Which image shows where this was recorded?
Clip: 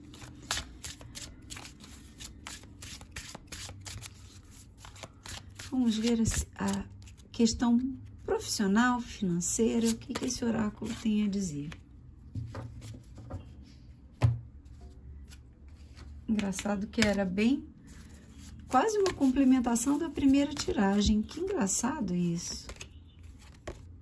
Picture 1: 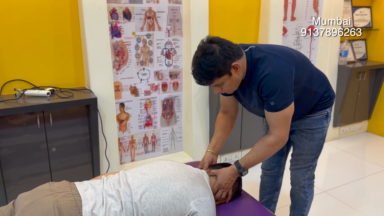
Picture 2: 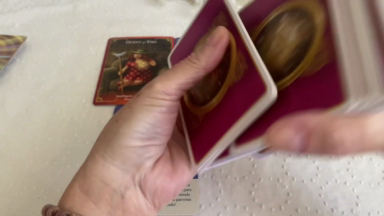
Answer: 2